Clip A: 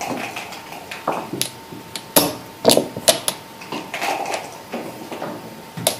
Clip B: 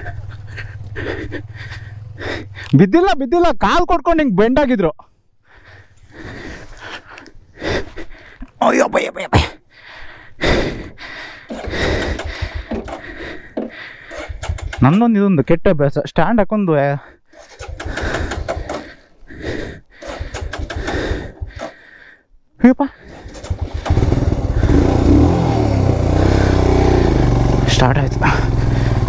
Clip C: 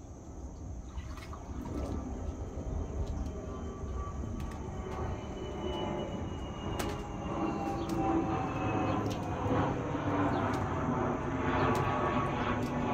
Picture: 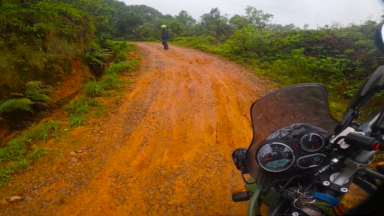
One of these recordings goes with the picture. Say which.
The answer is B